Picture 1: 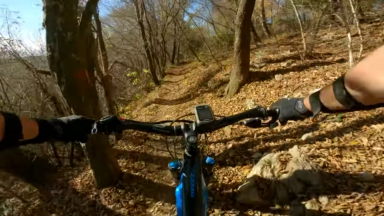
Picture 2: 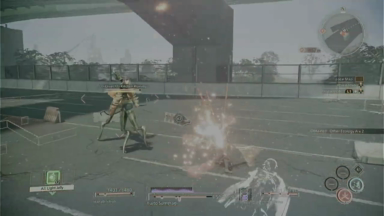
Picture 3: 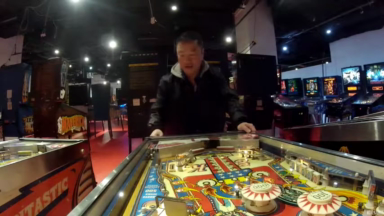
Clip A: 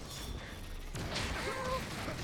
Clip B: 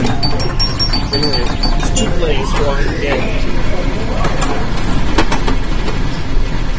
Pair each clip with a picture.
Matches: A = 2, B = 3